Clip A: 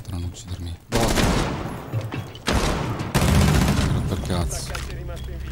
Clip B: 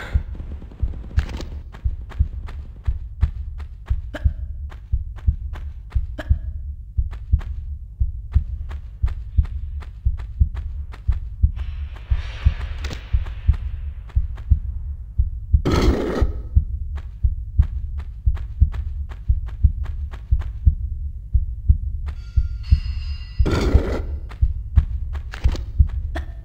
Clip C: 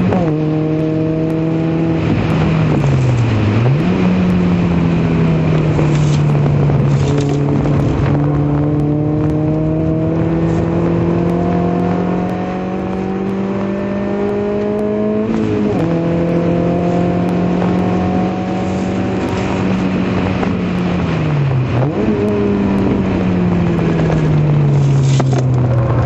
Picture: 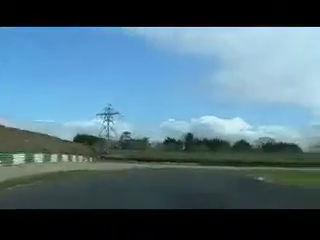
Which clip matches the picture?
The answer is C